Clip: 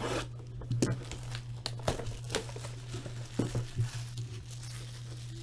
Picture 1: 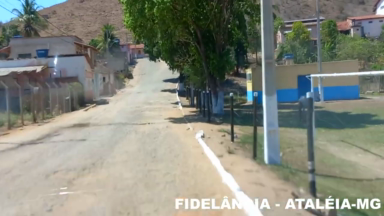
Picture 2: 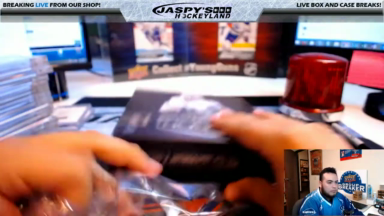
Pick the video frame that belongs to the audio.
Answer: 2